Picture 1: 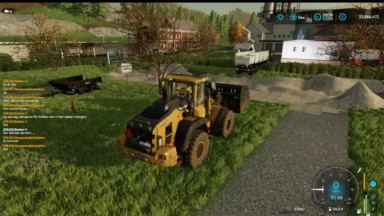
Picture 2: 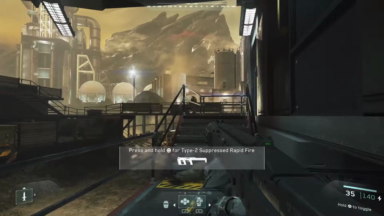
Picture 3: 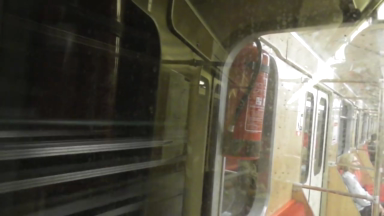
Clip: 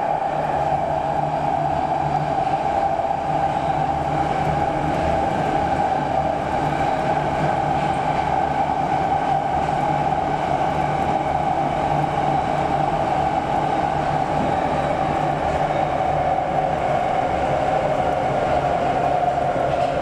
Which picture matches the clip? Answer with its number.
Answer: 3